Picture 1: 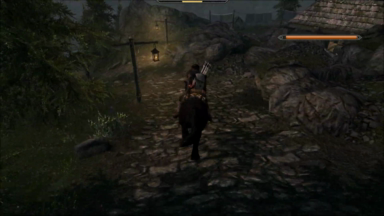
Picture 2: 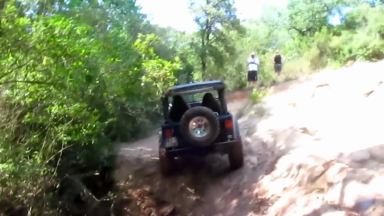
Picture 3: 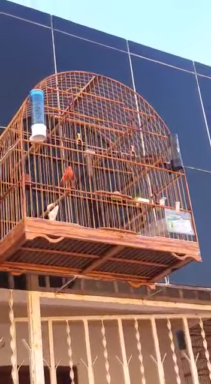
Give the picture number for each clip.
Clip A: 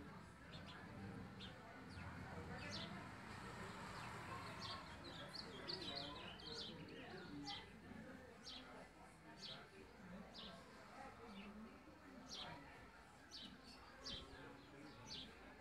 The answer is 3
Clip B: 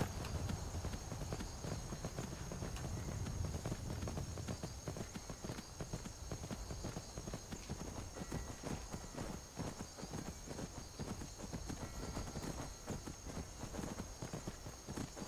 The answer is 1